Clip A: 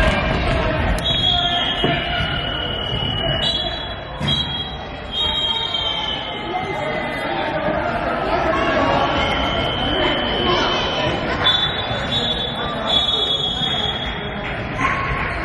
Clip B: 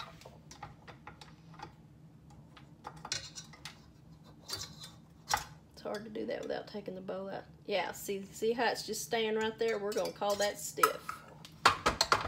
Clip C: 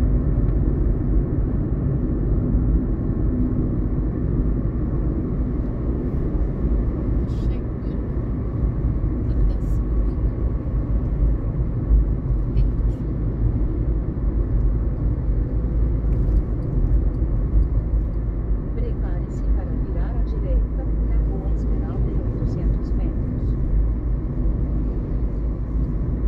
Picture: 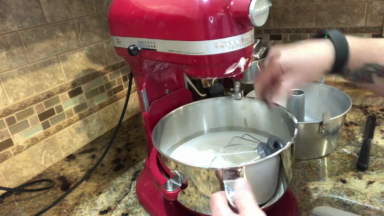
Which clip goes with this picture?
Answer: B